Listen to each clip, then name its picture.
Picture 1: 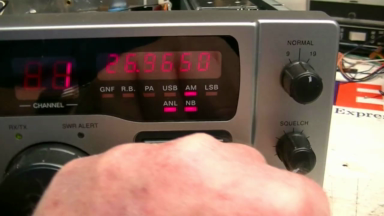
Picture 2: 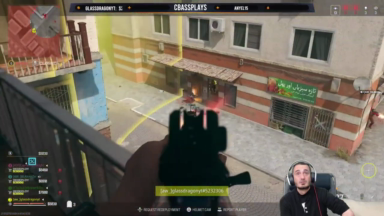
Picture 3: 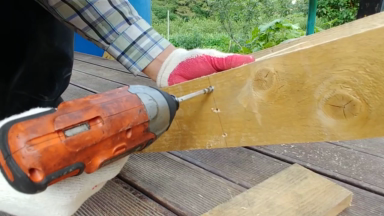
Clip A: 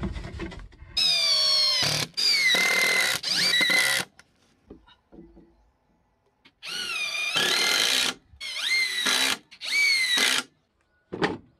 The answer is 3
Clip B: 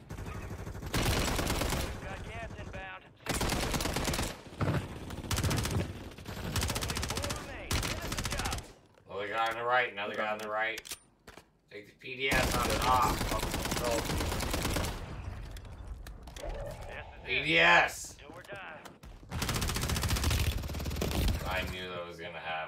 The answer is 2